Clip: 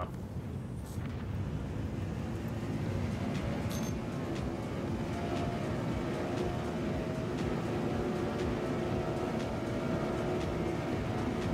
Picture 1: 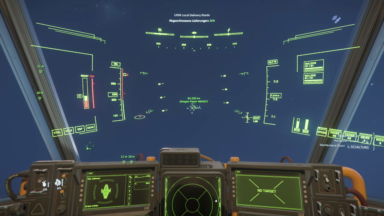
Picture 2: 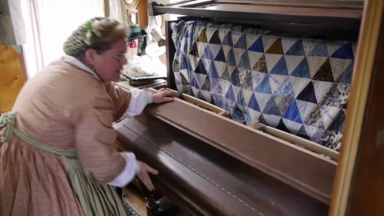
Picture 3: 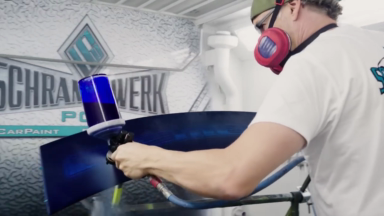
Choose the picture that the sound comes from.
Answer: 1